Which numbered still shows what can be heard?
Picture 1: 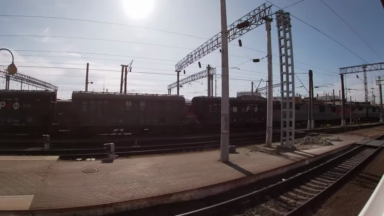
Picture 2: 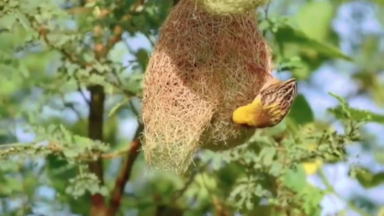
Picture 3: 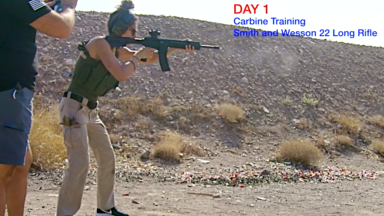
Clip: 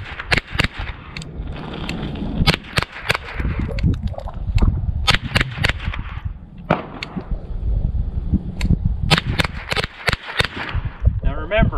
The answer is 3